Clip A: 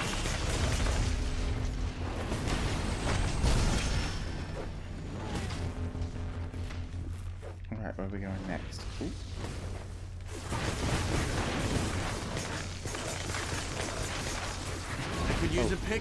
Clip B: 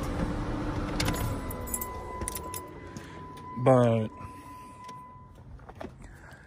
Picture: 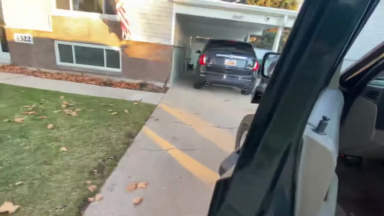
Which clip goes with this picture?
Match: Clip B